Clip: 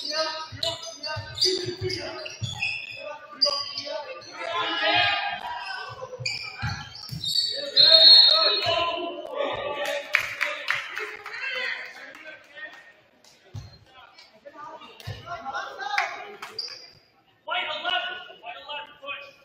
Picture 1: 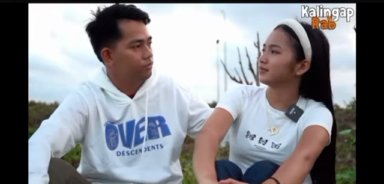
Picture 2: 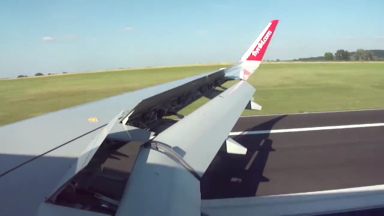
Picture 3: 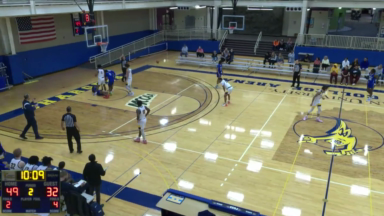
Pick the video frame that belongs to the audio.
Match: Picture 3